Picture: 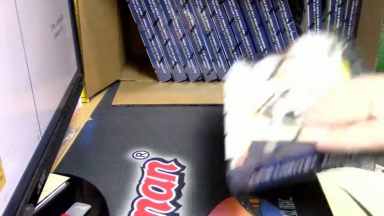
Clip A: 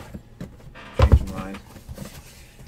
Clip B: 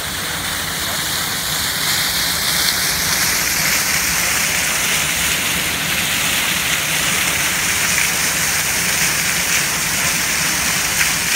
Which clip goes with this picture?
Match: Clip A